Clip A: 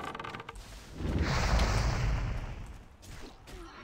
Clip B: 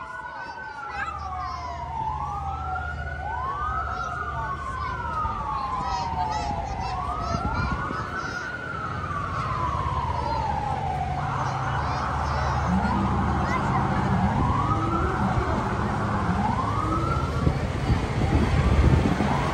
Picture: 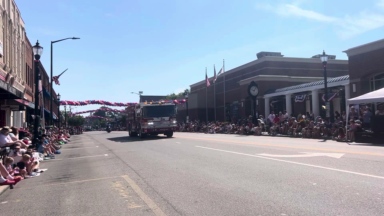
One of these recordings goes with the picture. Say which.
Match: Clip B